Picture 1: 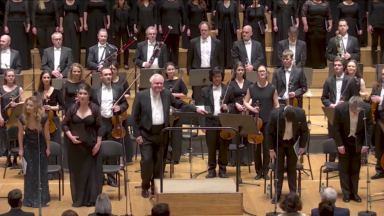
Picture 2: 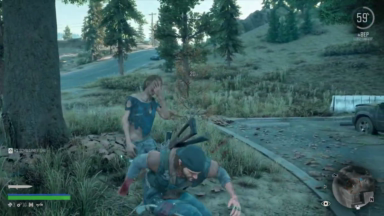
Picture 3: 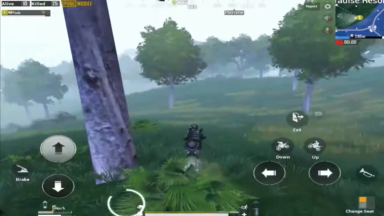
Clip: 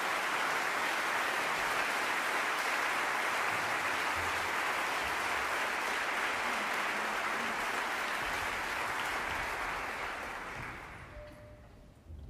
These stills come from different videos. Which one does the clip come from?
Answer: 1